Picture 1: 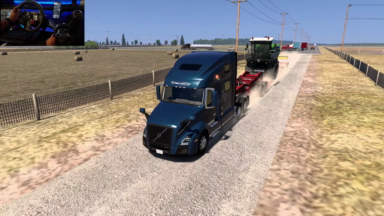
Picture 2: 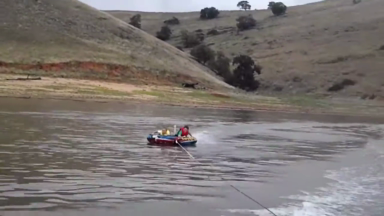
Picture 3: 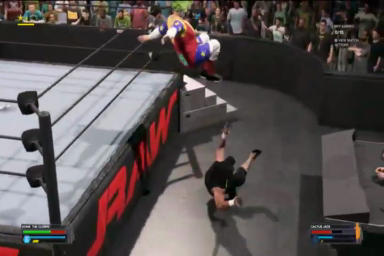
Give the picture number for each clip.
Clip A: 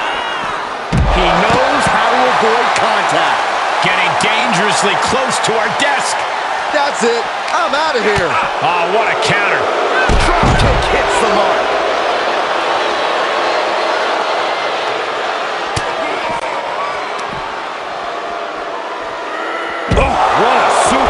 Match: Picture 3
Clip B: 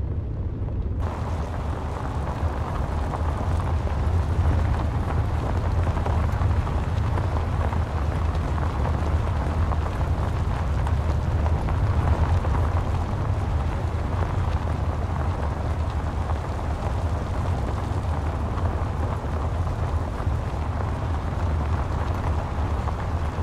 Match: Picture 1